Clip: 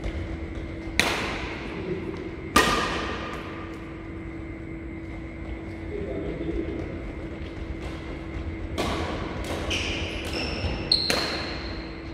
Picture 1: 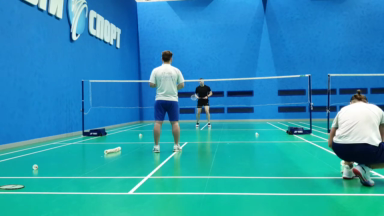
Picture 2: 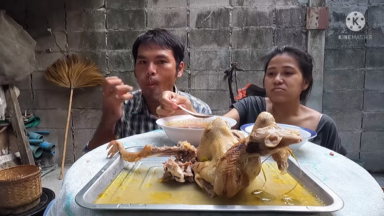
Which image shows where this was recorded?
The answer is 1